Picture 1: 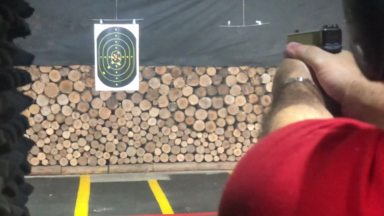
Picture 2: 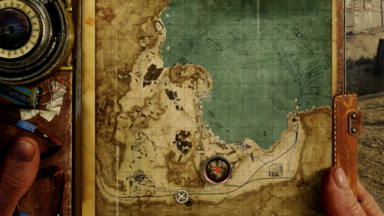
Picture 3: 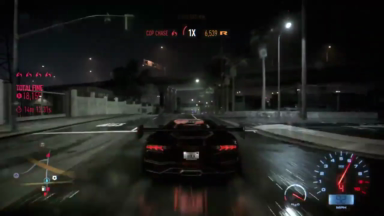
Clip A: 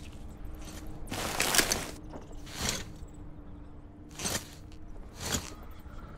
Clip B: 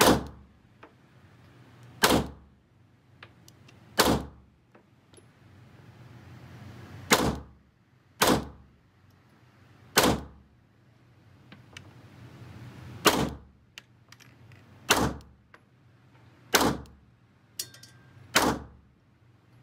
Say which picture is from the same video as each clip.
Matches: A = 2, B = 1